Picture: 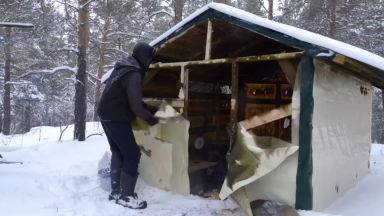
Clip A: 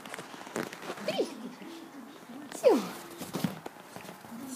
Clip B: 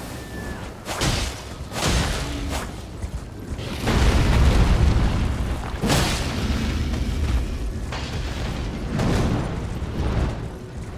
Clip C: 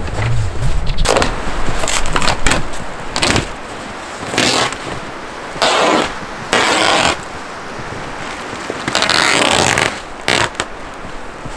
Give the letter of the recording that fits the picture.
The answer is C